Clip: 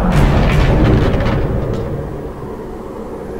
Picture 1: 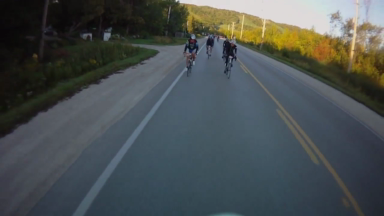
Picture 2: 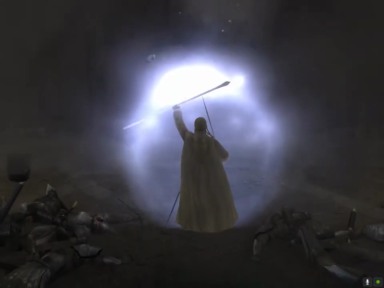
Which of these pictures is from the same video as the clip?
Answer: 2